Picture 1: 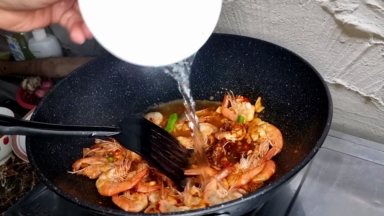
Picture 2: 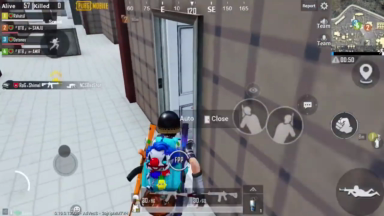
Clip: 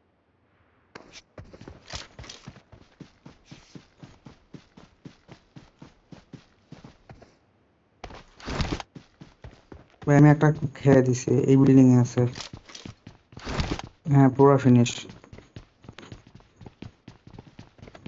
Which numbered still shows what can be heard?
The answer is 2